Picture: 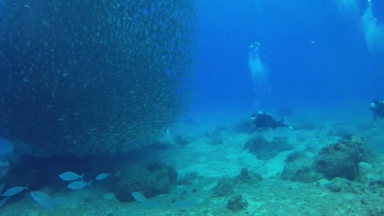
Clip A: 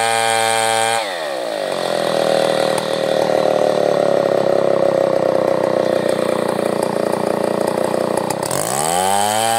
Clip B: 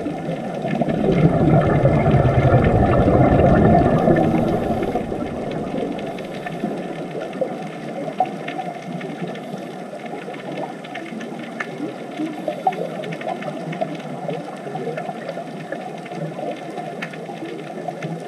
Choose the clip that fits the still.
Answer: B